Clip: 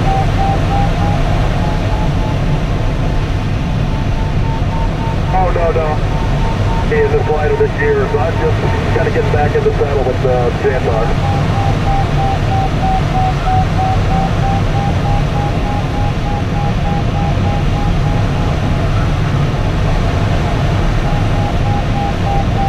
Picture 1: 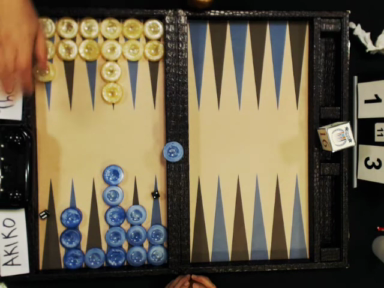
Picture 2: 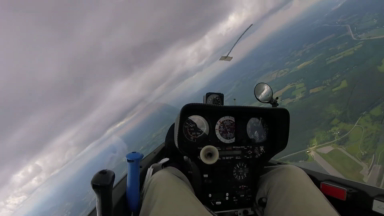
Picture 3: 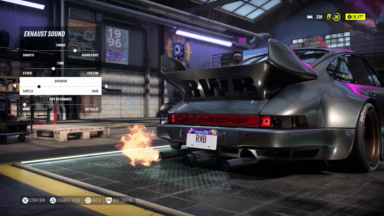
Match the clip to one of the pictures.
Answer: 2